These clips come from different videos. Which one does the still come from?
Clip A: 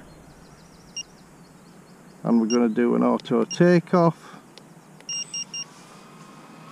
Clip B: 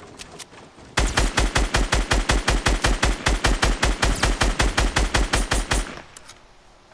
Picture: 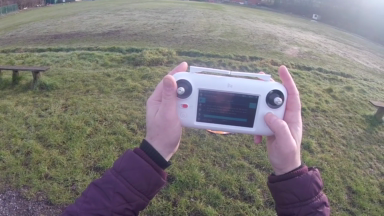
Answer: A